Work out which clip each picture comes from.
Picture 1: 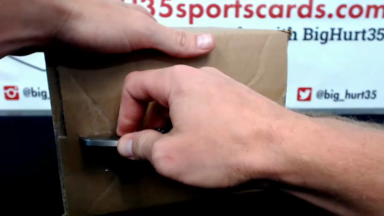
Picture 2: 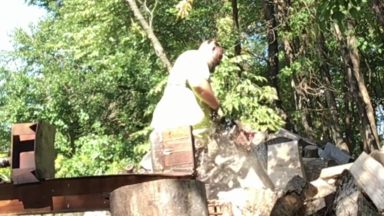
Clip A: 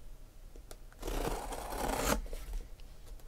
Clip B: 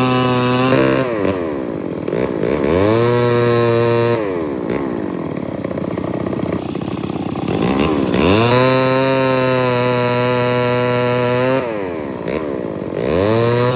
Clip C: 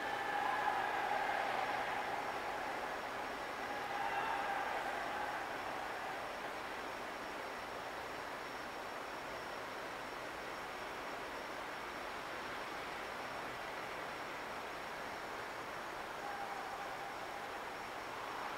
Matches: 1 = A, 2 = B